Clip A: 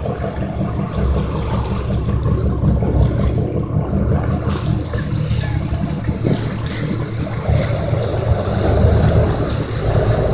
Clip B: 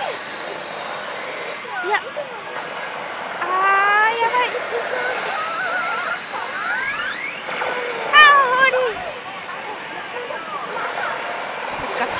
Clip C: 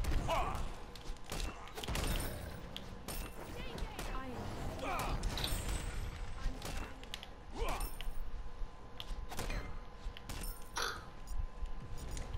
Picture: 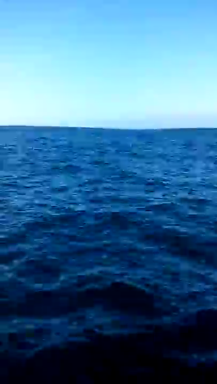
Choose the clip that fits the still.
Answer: A